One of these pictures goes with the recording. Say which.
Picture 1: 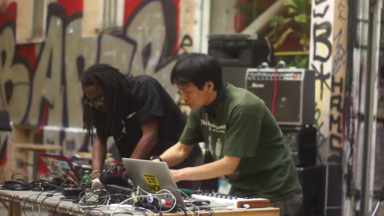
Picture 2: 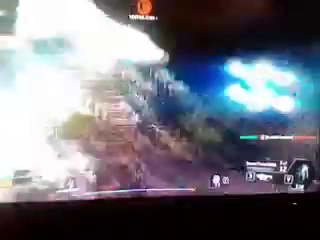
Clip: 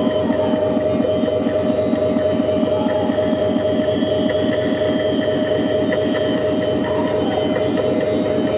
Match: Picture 1